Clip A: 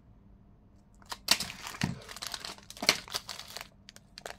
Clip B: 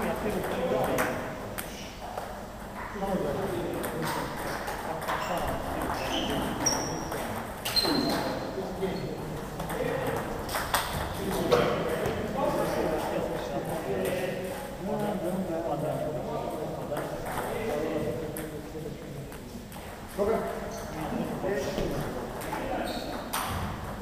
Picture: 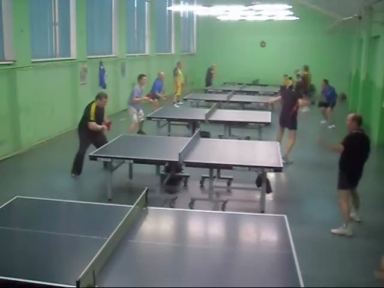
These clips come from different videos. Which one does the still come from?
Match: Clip B